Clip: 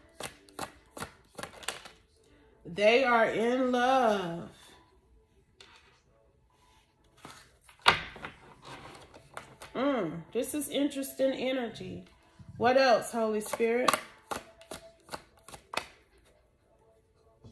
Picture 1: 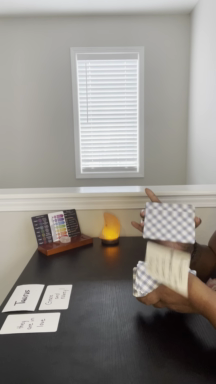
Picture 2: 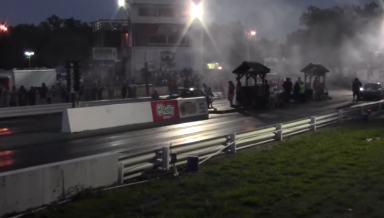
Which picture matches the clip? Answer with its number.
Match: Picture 1